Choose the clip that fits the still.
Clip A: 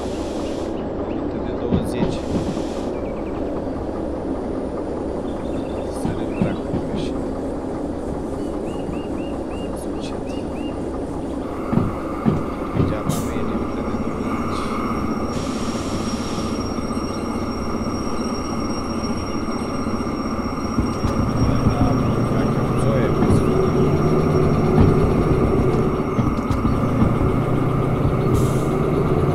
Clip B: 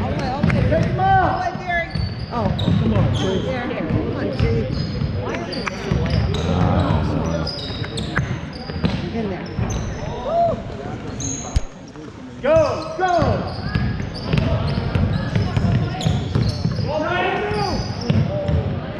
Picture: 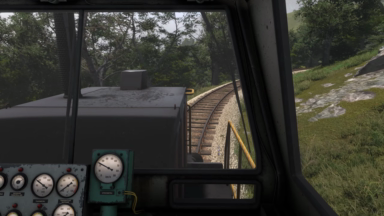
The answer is A